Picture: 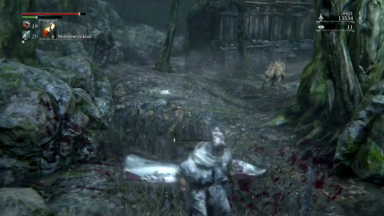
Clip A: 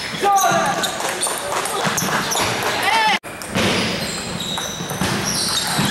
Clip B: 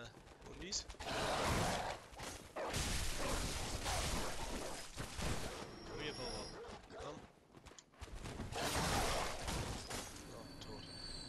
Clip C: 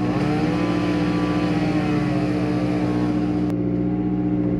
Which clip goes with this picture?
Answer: B